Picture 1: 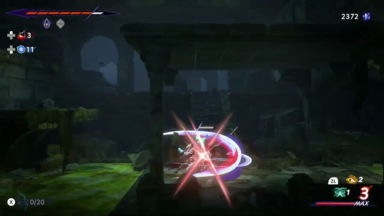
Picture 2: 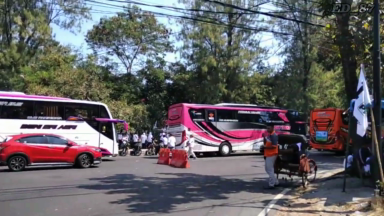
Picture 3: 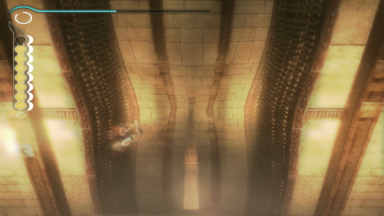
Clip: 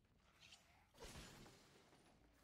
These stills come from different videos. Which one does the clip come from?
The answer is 1